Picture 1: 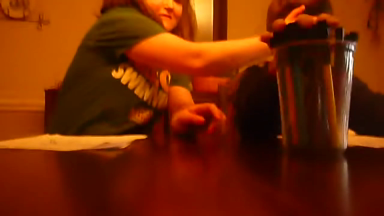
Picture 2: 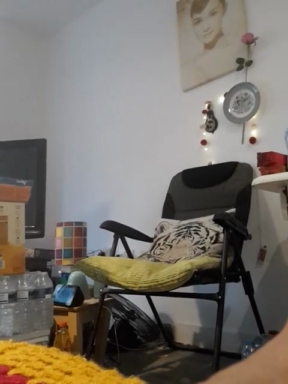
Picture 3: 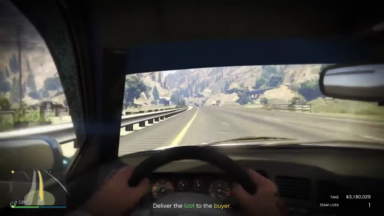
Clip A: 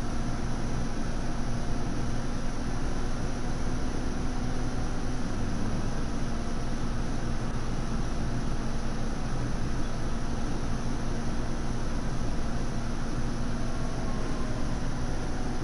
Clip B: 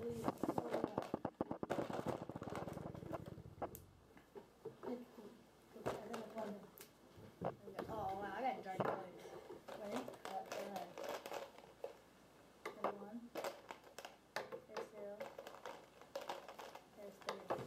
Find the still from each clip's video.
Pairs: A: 3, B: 1